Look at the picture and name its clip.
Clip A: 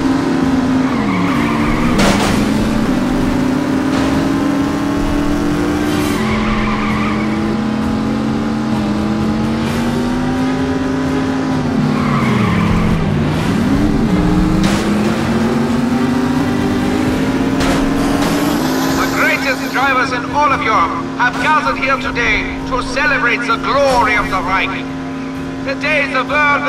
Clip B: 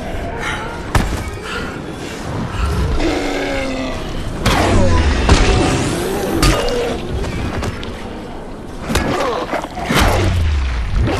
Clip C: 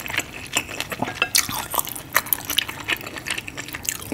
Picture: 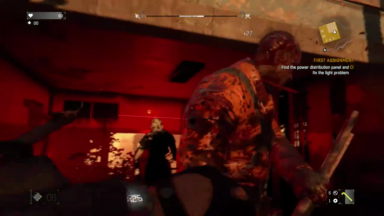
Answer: B